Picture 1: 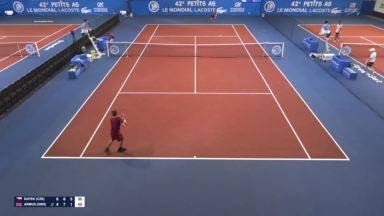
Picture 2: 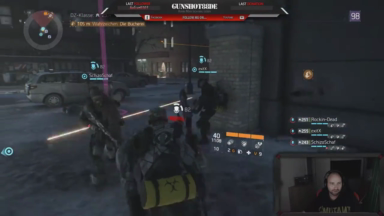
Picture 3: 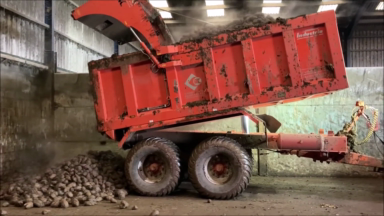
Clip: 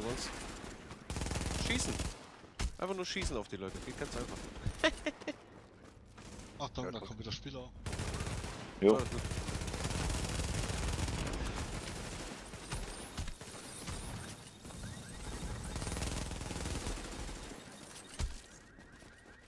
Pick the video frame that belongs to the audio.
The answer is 2